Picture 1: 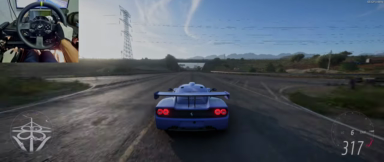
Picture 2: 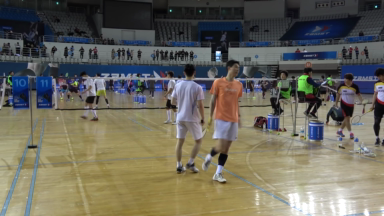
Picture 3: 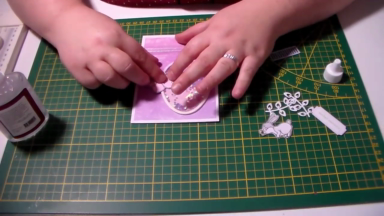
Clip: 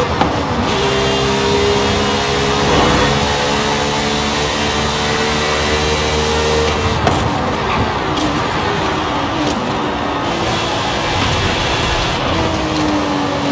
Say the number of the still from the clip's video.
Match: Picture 1